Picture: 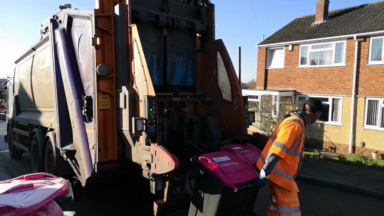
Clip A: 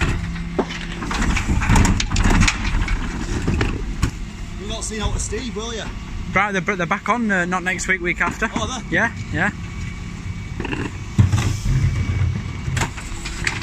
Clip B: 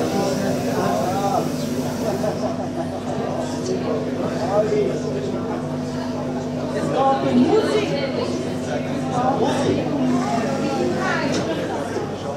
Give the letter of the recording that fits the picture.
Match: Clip A